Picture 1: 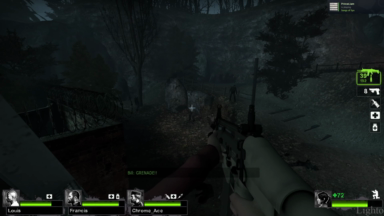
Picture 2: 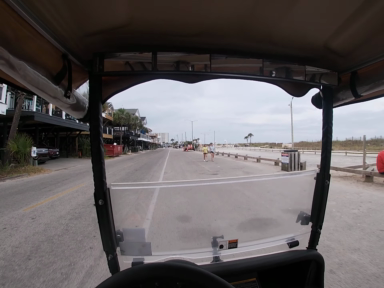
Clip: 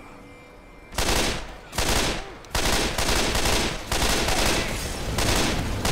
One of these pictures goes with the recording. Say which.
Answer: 1